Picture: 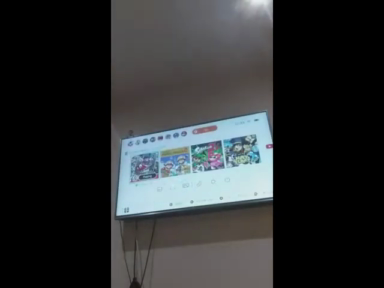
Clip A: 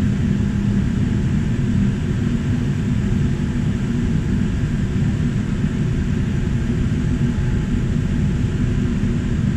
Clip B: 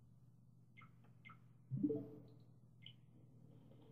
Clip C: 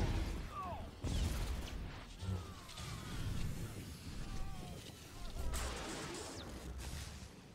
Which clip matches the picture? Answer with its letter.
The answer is B